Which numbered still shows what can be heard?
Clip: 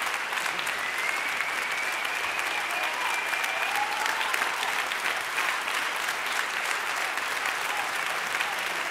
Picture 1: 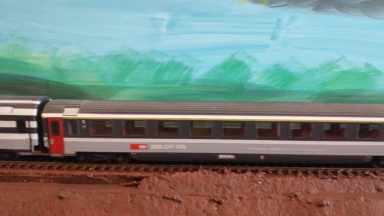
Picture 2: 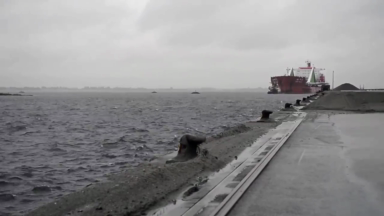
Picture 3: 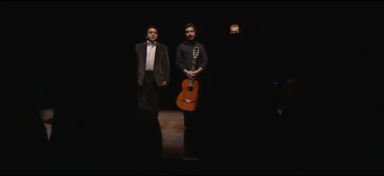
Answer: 3